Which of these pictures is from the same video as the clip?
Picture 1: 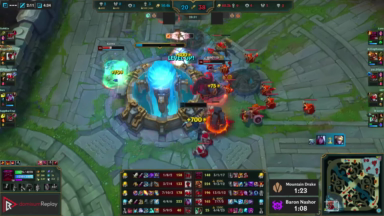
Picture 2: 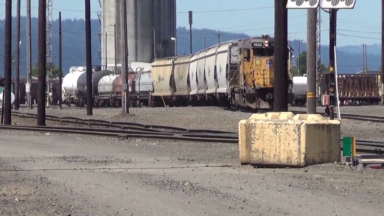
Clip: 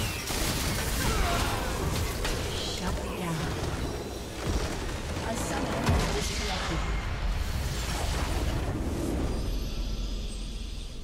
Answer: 1